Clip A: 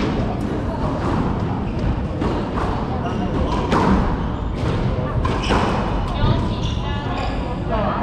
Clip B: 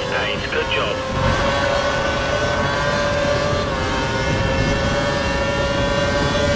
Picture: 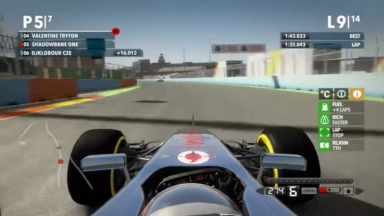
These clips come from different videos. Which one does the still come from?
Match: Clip B